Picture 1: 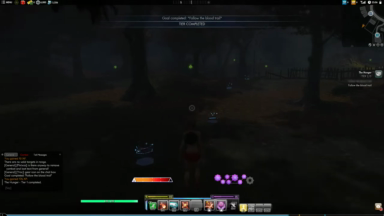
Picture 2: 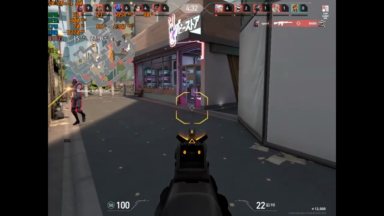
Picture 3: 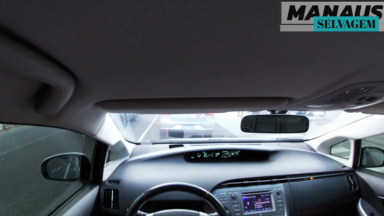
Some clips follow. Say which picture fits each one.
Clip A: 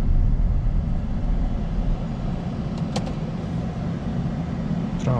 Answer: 3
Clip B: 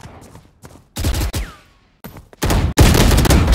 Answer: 2